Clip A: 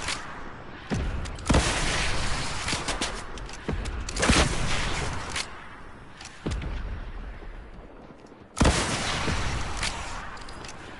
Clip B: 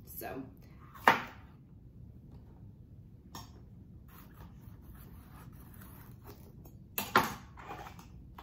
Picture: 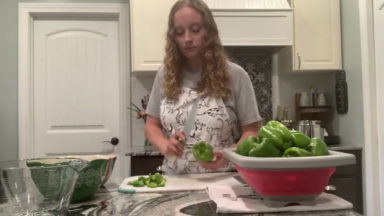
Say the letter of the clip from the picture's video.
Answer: B